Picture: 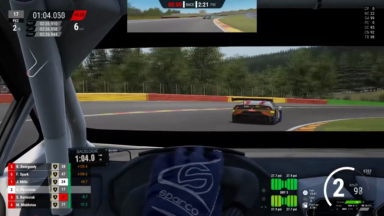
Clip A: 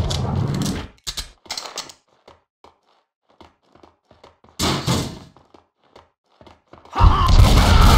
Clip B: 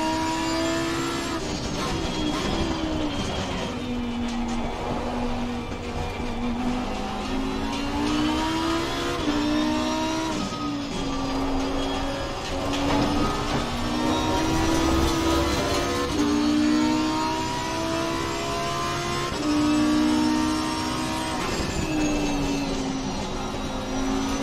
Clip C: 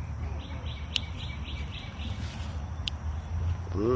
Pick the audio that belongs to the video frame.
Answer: B